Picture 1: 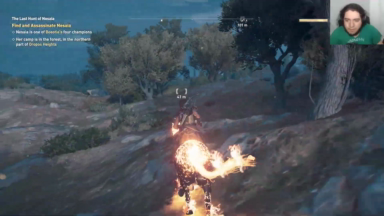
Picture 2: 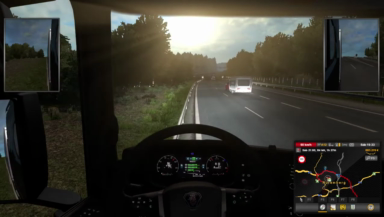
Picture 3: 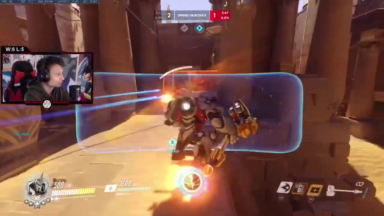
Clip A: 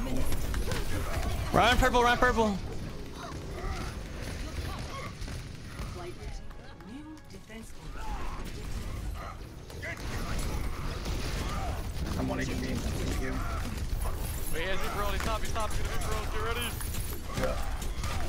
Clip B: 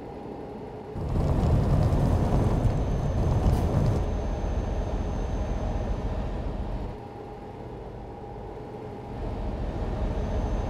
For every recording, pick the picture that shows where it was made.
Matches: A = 3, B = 2